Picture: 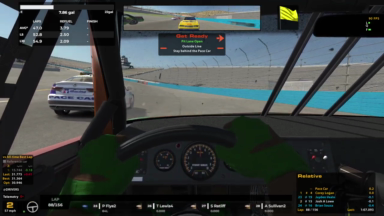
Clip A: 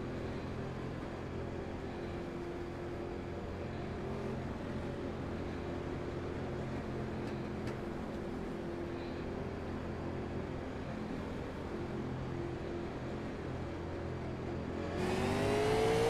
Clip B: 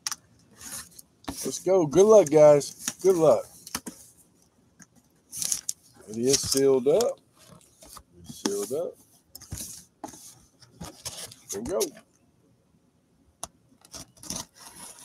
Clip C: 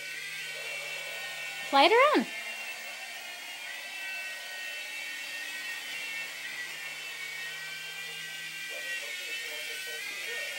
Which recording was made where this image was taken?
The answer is A